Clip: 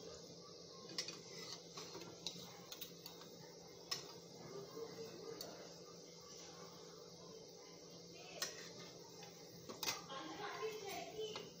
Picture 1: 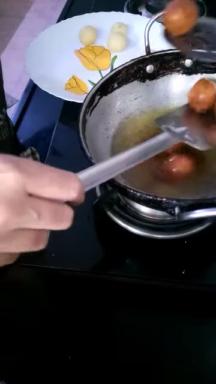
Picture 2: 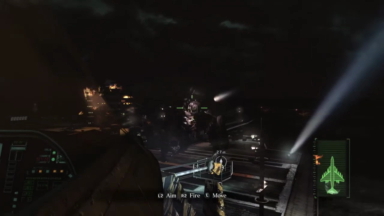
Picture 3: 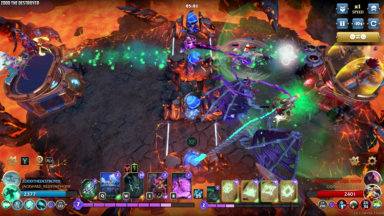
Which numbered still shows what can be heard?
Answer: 1